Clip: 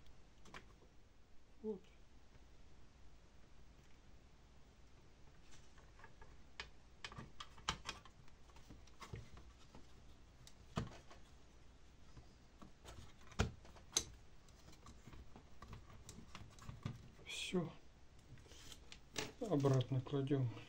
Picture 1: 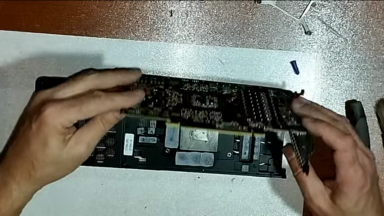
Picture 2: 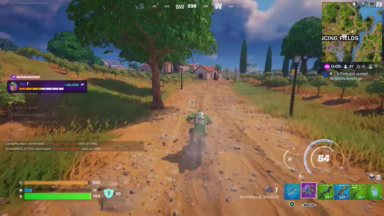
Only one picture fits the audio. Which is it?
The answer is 1